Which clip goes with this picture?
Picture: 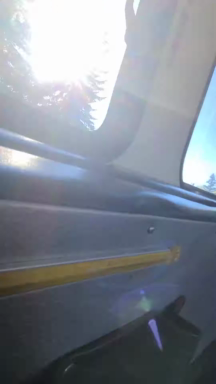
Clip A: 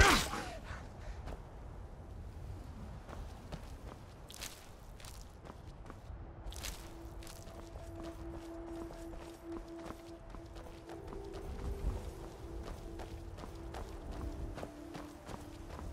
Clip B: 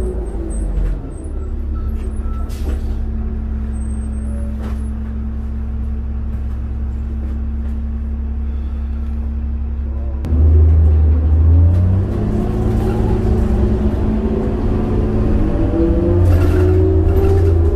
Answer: B